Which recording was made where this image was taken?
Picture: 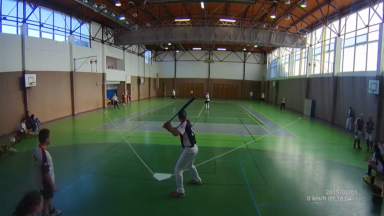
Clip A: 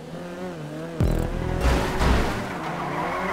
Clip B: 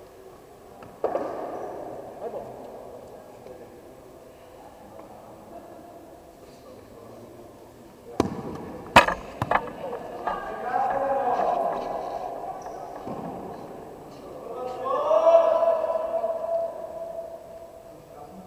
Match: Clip B